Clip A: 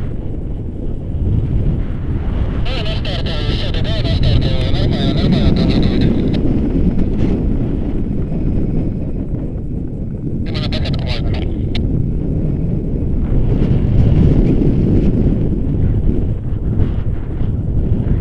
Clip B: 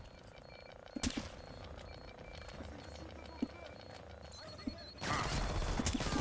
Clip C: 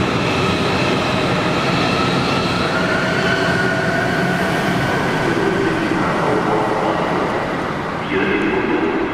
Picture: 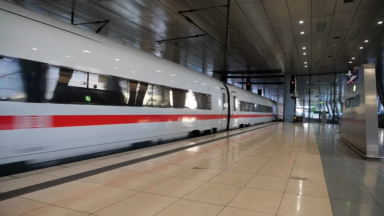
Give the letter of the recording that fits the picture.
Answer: C